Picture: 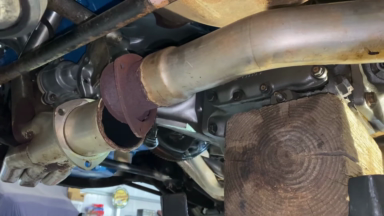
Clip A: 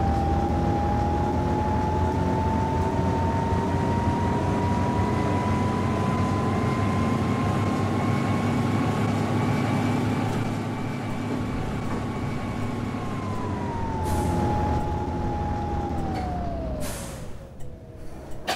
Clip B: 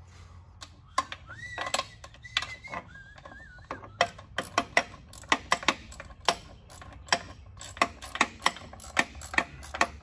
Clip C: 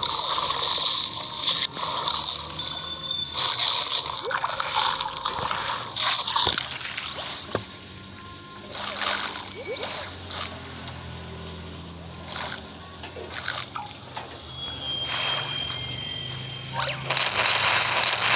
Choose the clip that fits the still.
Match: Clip B